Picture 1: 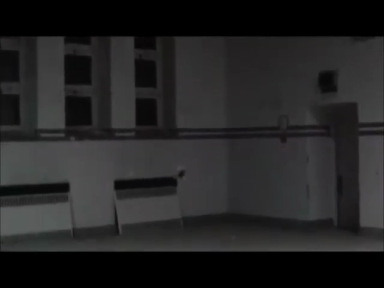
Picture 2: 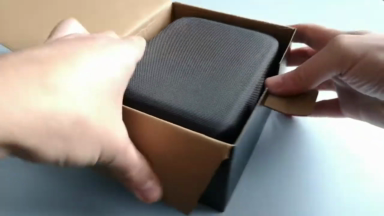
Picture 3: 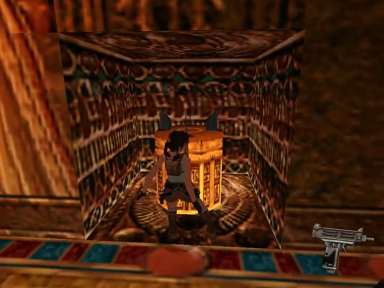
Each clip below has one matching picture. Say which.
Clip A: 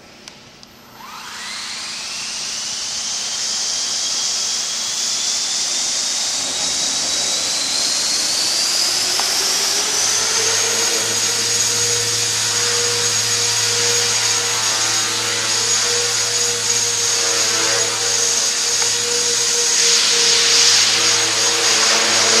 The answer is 1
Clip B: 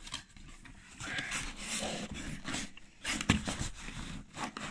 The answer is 2